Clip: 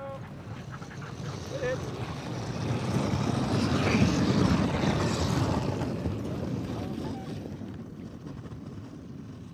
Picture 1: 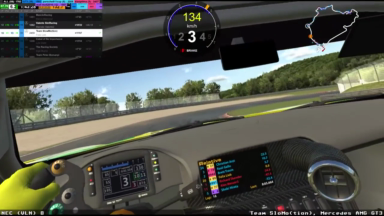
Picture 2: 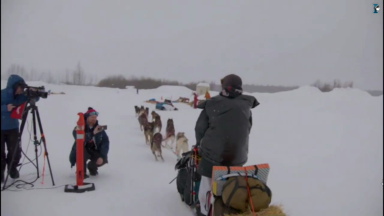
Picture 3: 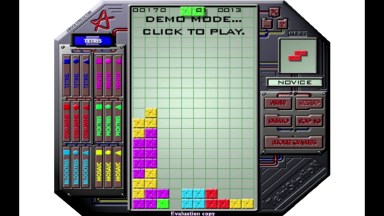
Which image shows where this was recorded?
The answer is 2